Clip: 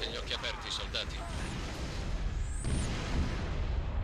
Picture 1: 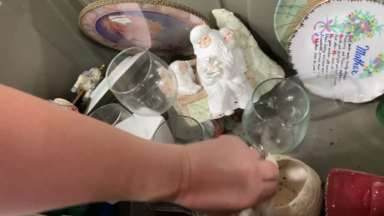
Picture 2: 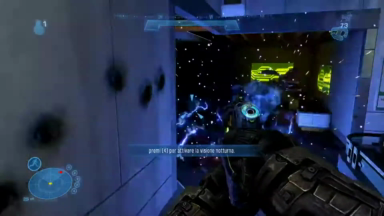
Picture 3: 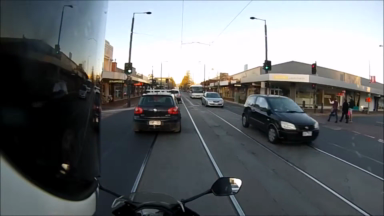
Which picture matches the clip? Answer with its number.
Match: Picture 2